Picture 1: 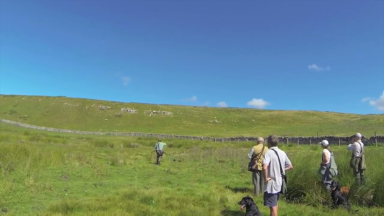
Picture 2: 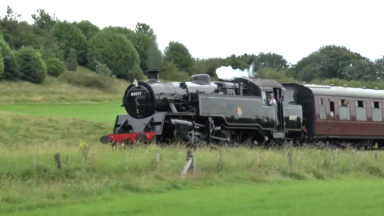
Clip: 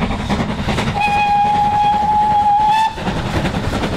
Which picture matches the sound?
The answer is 2